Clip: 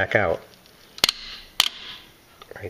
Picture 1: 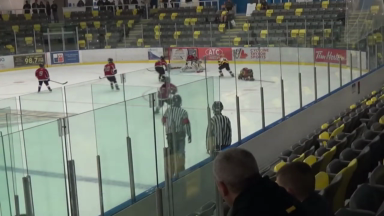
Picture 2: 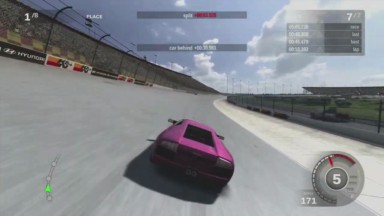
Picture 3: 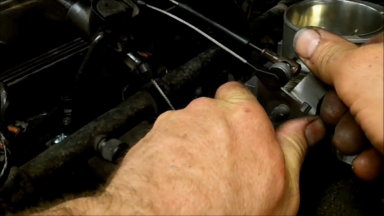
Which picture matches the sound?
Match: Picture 3